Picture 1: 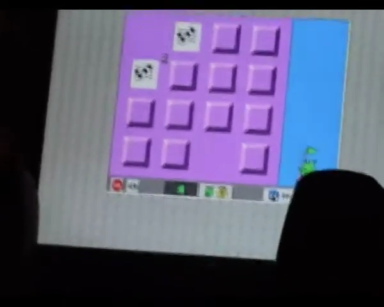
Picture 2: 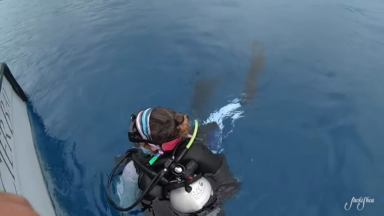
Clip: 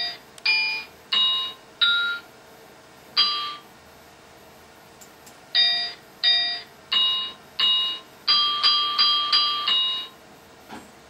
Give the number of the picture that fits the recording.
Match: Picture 1